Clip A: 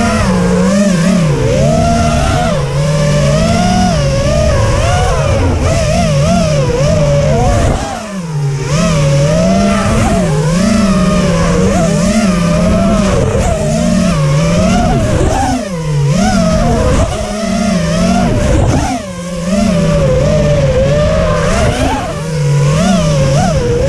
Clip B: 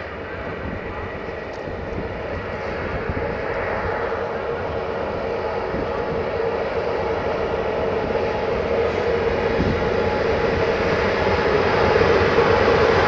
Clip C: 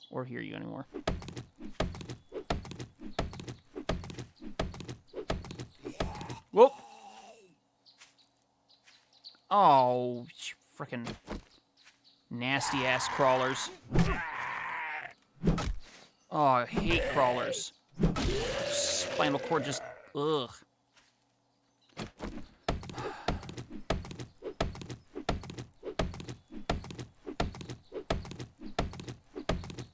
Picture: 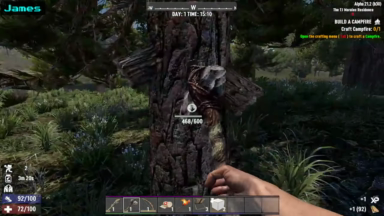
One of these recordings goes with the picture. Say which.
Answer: C